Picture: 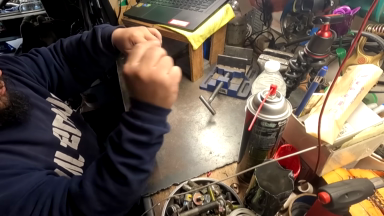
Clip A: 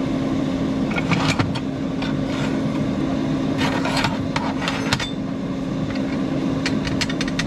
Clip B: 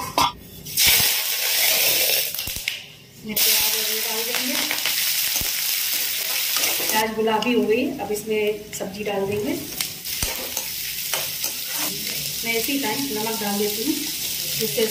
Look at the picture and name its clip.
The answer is A